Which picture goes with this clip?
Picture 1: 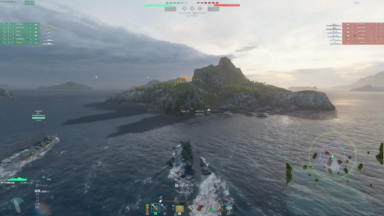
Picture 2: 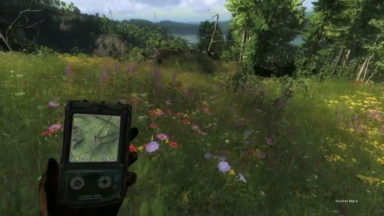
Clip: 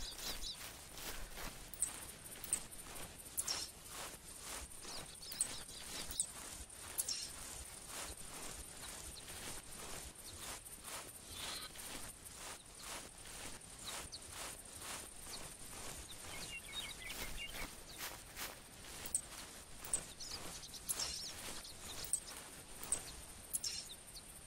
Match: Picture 2